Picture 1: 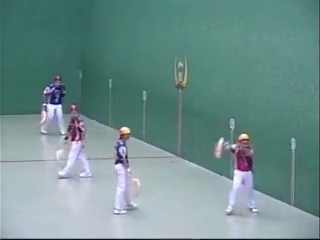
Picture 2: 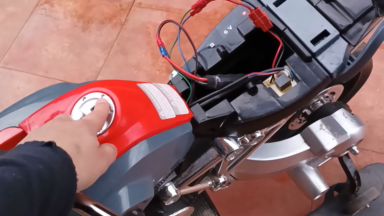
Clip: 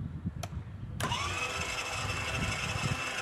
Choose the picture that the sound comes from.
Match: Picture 2